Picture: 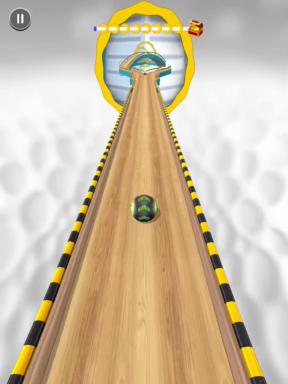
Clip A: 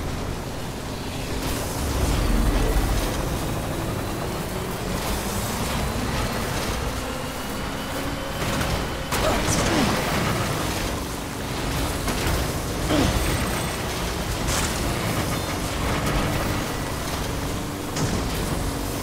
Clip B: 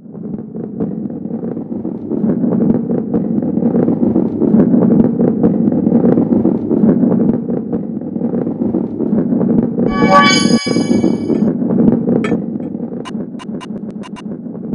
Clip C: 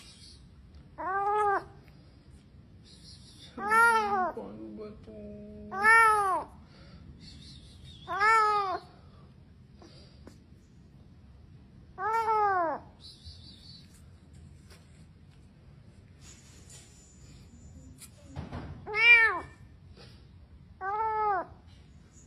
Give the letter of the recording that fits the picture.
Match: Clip B